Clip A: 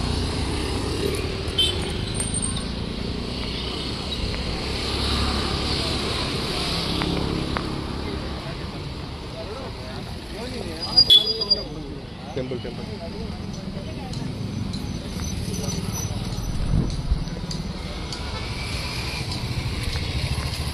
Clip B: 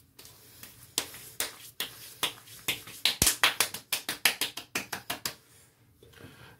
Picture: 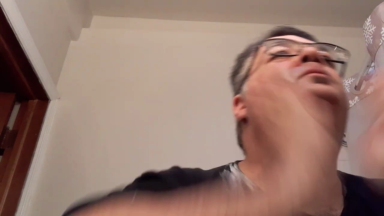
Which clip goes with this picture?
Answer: B